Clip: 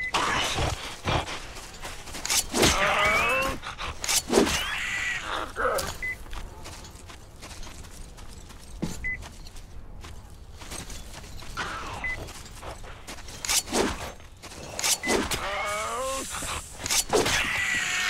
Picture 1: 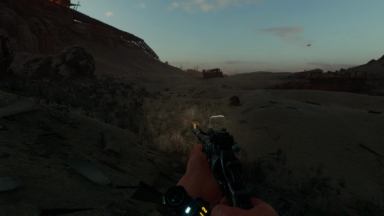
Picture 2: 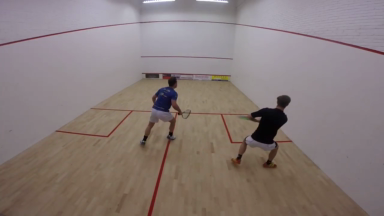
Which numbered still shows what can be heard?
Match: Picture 1